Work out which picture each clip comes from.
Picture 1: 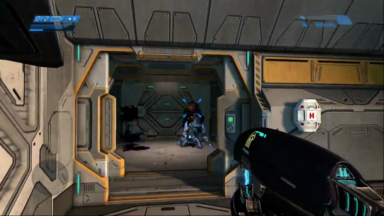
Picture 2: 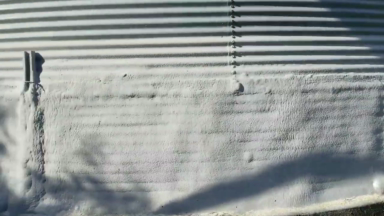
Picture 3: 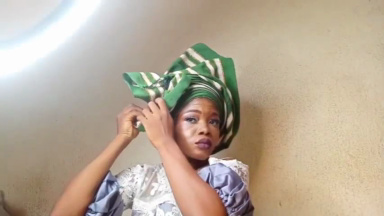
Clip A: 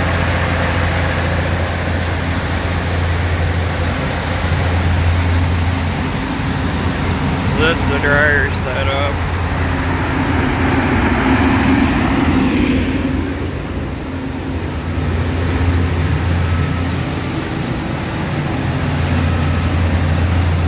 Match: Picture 2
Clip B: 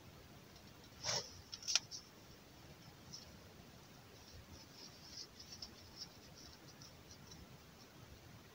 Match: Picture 3